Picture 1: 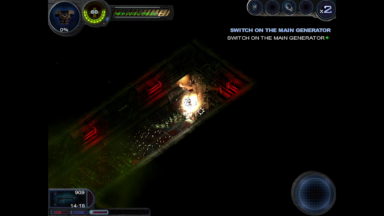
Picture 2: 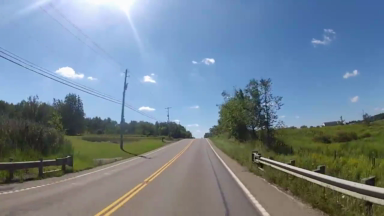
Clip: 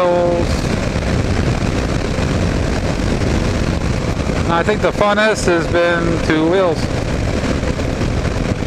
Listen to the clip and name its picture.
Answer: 2